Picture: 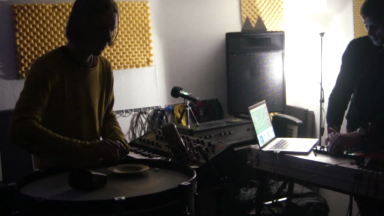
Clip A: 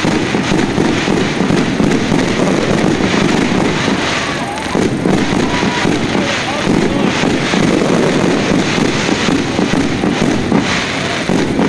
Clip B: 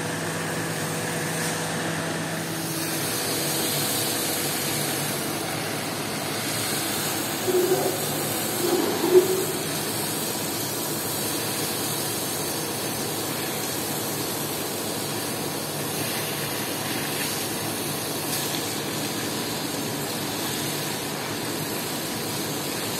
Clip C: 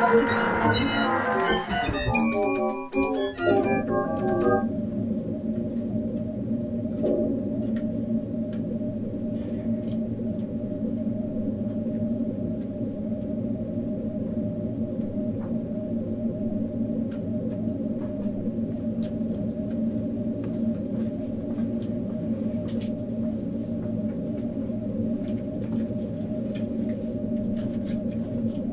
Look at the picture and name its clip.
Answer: C